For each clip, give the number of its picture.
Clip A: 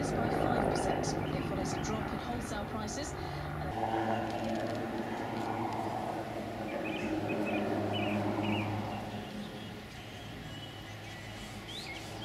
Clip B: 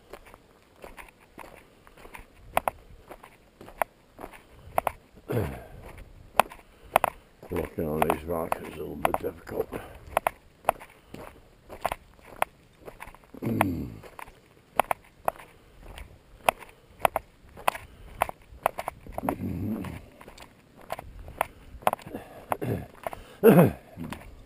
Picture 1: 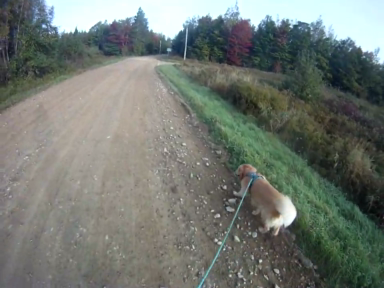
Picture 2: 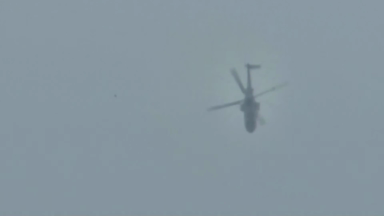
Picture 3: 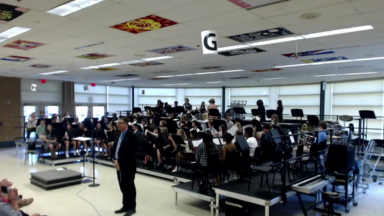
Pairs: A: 2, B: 1